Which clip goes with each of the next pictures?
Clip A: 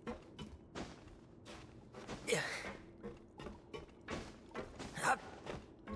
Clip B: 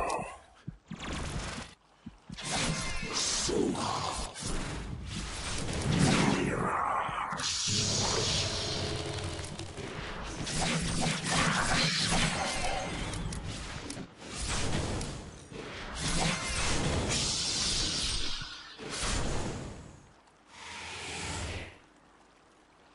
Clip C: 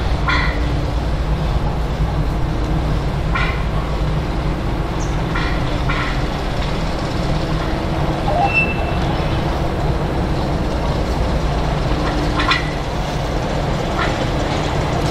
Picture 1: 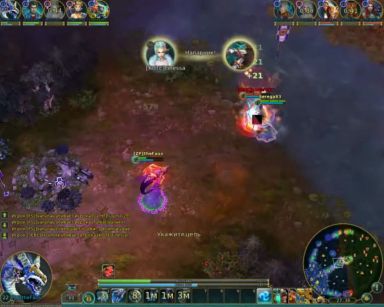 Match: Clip B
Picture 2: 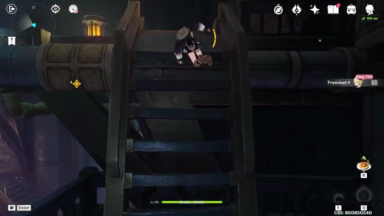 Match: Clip A